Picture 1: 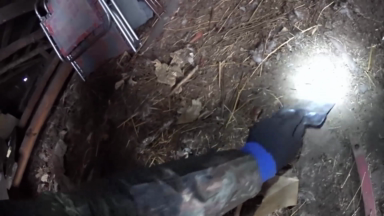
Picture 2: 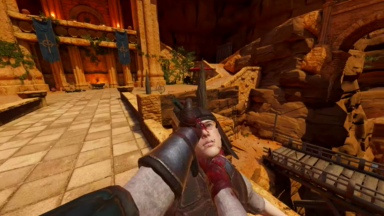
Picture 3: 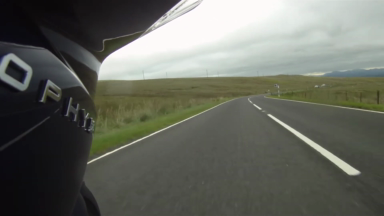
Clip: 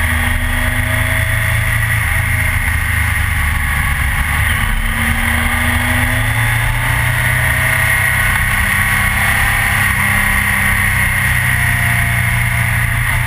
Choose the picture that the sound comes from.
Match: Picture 3